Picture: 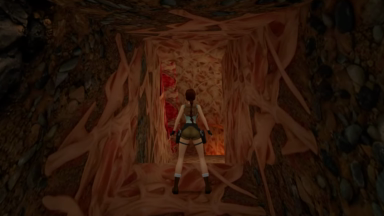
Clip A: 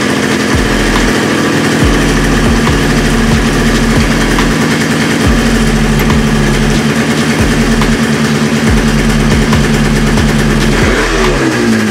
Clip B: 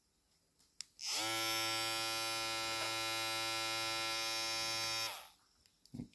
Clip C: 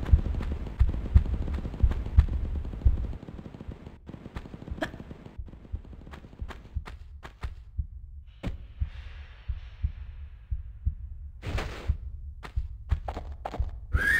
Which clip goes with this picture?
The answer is C